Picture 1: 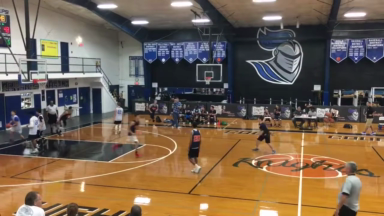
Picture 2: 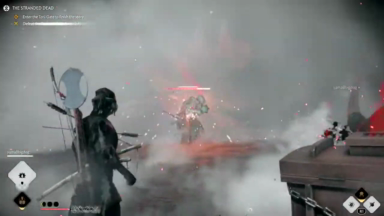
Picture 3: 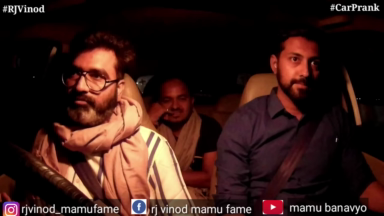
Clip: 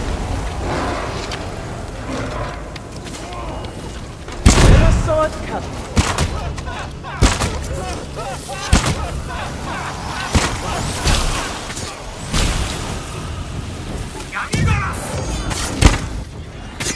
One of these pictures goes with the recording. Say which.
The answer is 2